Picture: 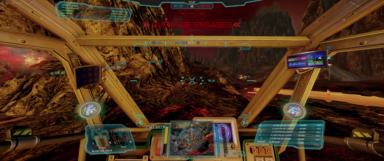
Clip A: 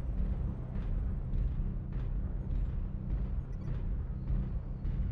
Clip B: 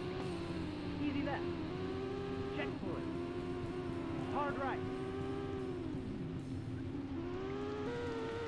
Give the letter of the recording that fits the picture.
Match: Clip A